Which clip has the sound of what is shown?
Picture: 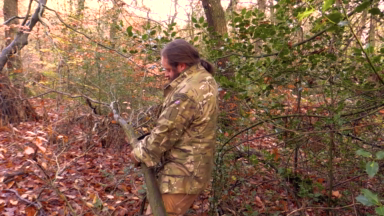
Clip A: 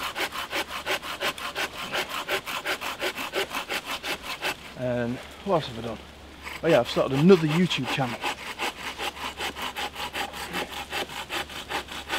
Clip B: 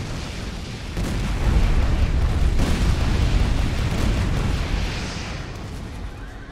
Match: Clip A